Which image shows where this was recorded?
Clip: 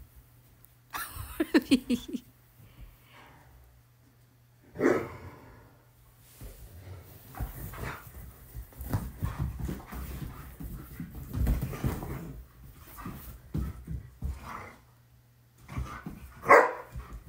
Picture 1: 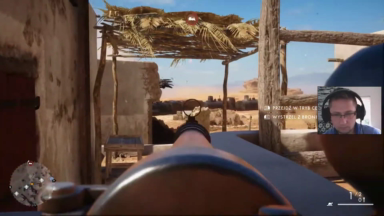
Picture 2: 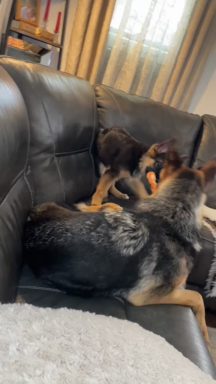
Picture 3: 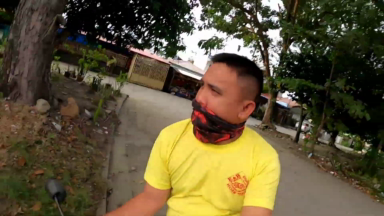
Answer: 2